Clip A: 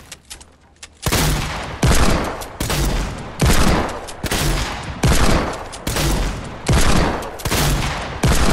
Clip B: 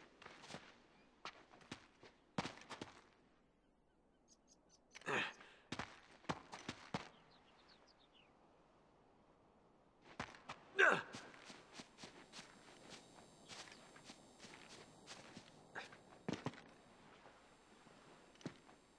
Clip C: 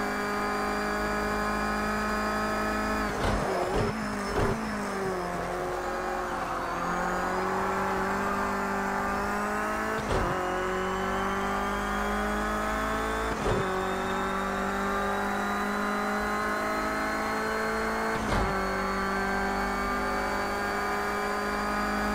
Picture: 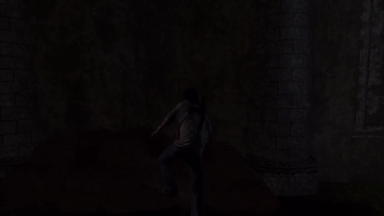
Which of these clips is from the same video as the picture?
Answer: B